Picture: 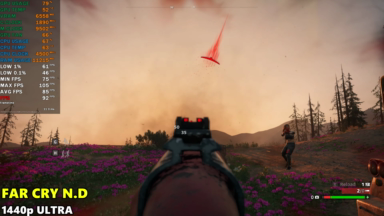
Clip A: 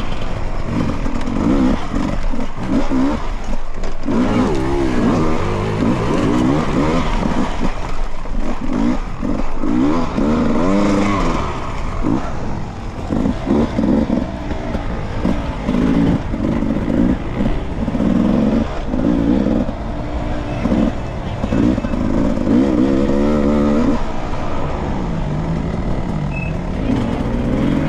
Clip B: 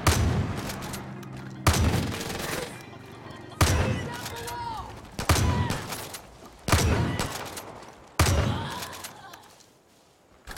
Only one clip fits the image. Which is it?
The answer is B